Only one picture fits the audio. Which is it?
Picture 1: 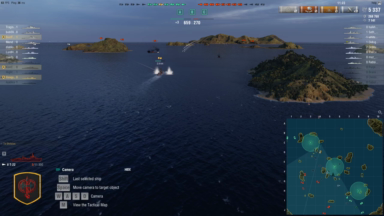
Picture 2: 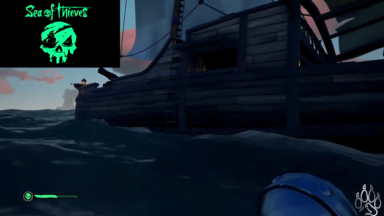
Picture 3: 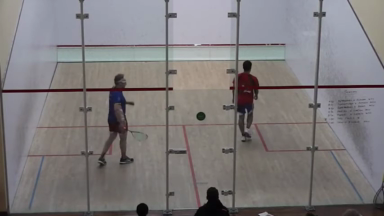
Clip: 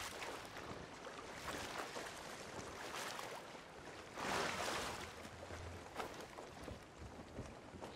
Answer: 2